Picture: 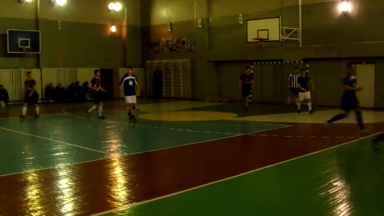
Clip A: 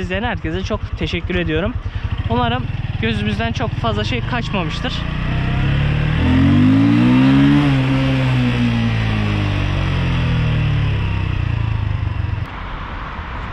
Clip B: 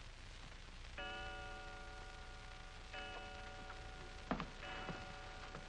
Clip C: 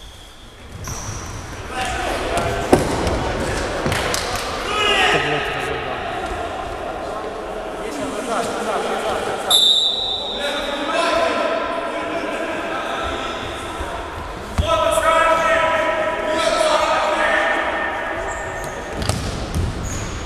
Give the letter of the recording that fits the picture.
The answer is C